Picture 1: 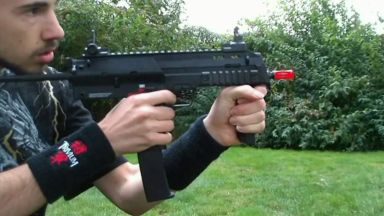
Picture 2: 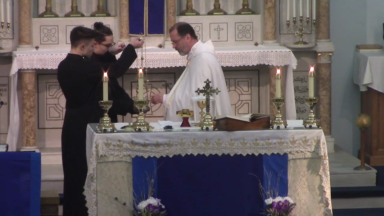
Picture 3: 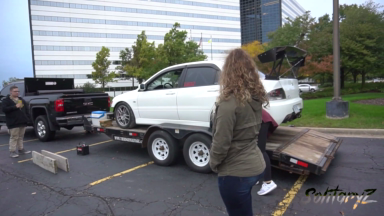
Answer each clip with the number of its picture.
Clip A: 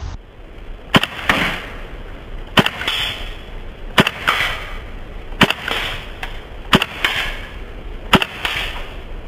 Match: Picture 1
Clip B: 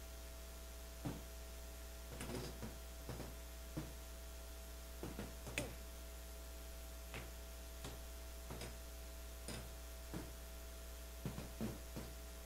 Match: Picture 2